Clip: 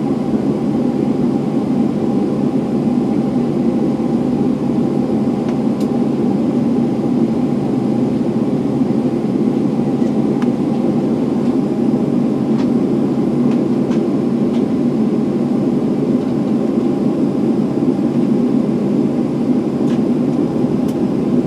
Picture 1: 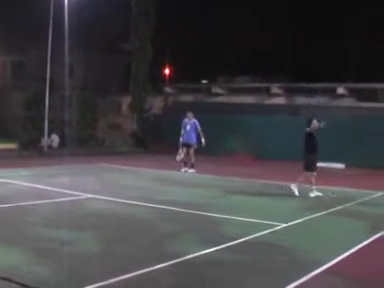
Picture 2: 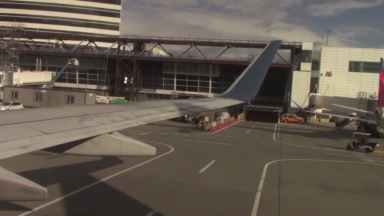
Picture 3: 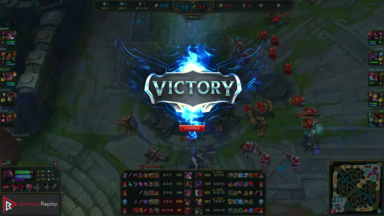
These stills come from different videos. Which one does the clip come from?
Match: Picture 2